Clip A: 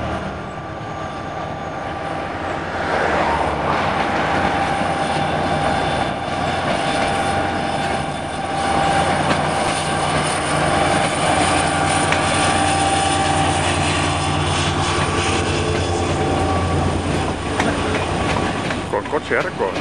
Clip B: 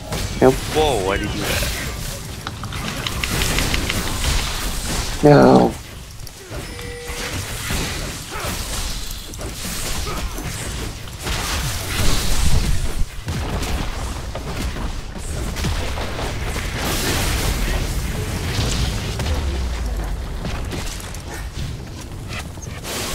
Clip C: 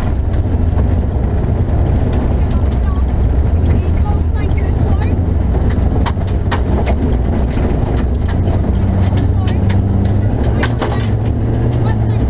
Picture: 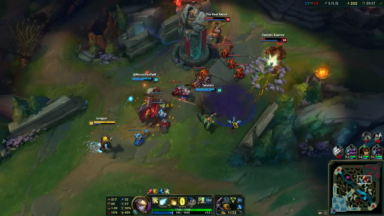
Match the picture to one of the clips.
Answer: B